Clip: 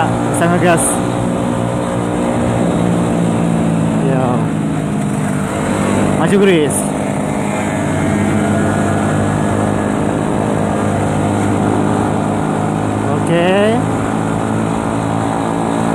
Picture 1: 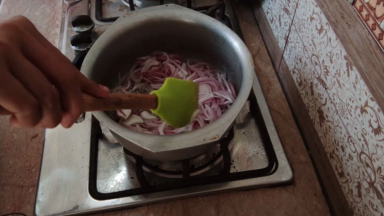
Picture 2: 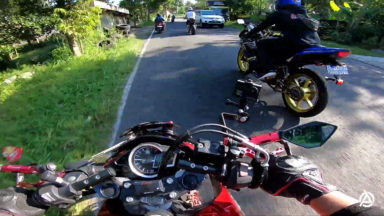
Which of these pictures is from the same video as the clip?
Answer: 2